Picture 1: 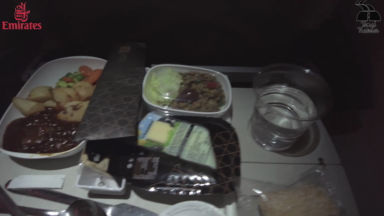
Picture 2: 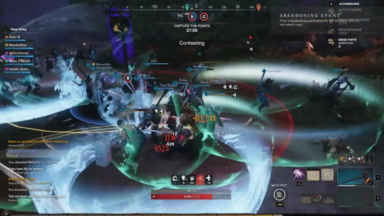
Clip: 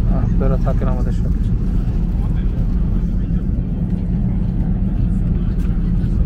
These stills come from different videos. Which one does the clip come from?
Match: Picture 1